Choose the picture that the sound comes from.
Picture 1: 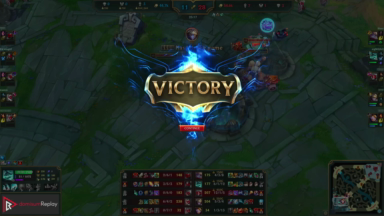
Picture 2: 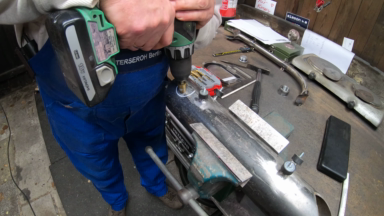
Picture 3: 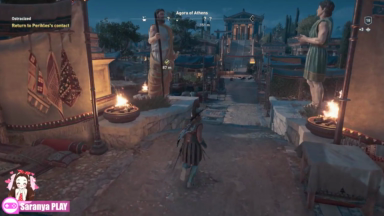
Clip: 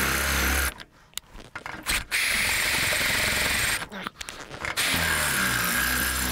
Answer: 2